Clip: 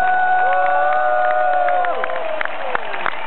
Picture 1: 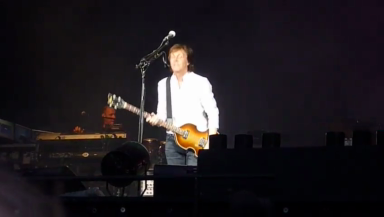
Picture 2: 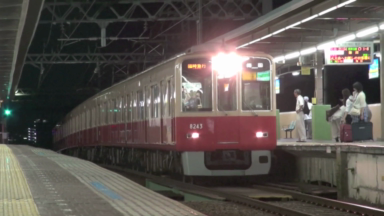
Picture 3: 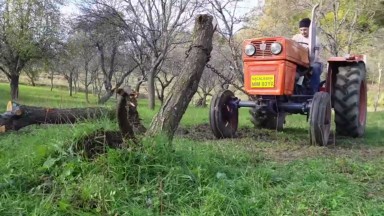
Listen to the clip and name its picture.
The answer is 1